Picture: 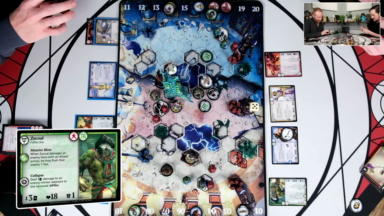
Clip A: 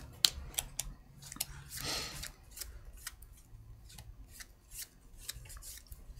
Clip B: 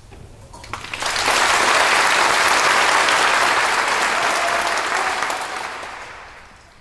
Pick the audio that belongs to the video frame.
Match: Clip A